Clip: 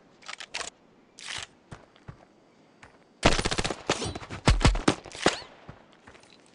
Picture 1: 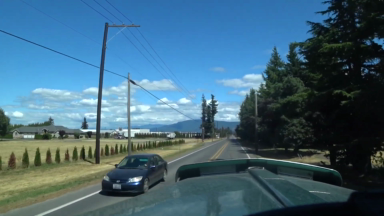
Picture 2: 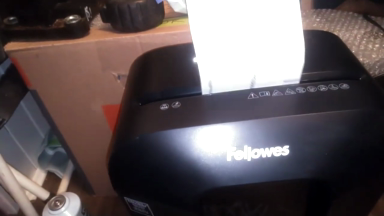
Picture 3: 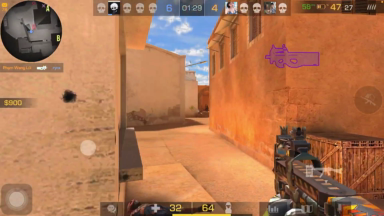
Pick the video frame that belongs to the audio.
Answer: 3